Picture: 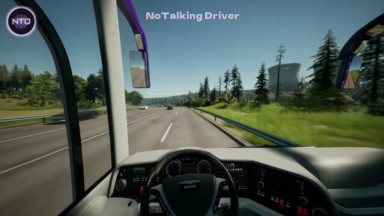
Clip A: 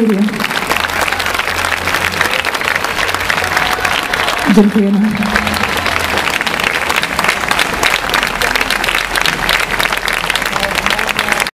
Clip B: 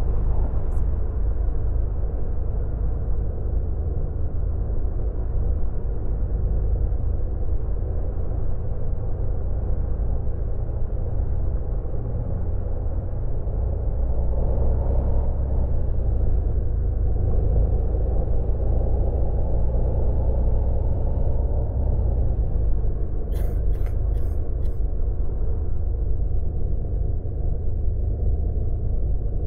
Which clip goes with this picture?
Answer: B